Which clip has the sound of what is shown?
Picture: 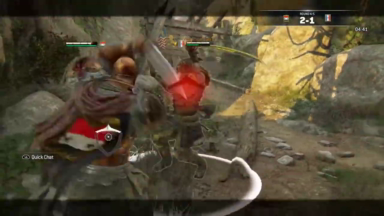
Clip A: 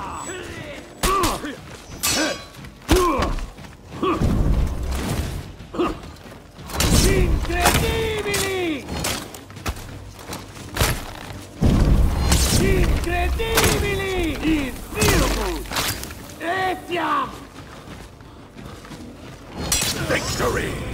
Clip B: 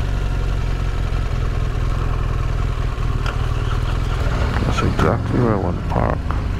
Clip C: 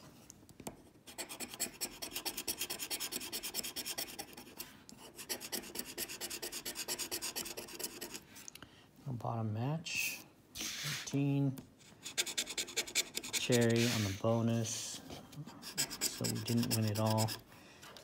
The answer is A